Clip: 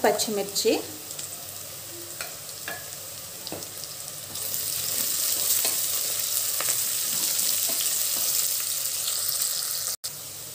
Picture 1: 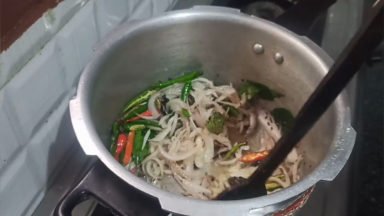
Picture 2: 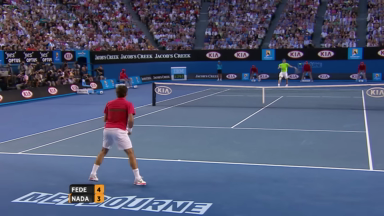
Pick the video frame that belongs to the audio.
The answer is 1